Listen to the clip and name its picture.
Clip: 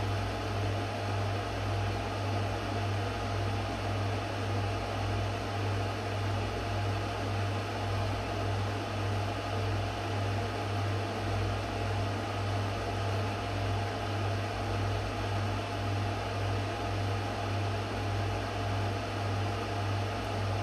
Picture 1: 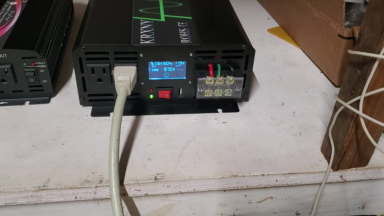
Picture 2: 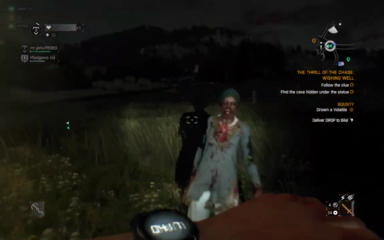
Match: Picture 1